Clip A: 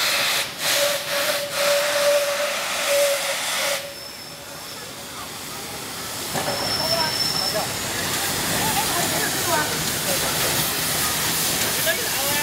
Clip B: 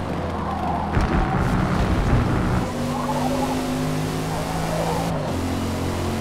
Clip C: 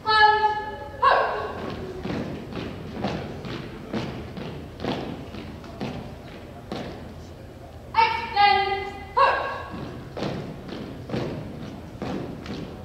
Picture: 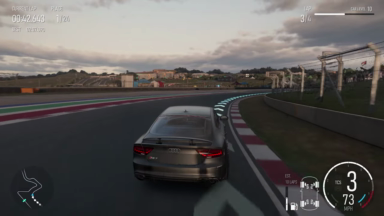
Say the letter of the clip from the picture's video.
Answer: B